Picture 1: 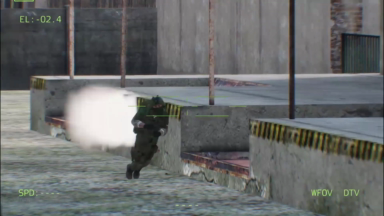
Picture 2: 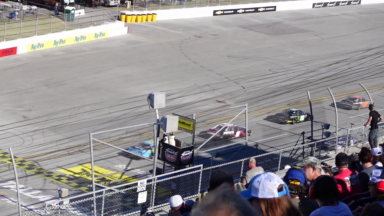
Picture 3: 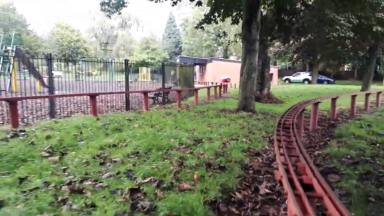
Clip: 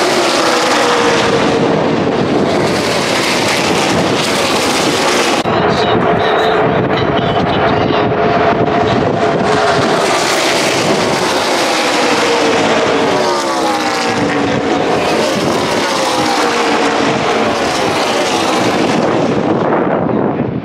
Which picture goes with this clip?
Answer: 2